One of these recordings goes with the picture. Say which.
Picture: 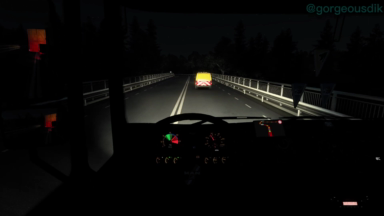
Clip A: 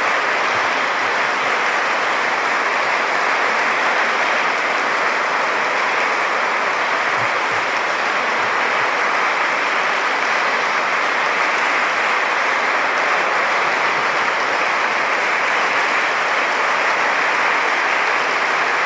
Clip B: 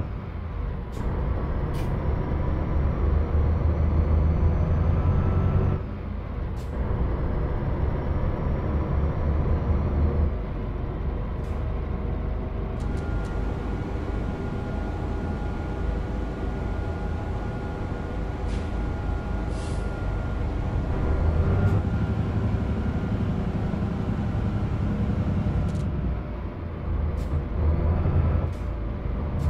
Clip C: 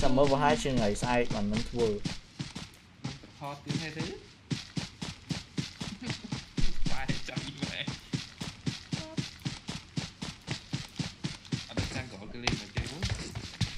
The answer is B